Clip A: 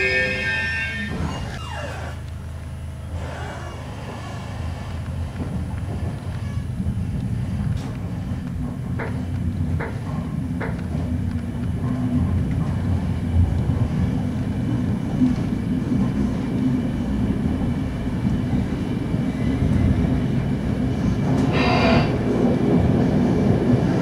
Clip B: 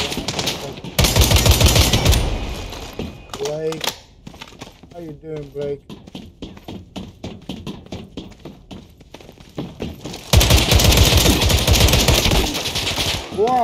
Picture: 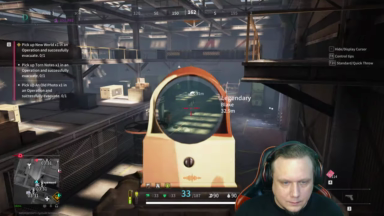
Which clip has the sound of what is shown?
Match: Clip B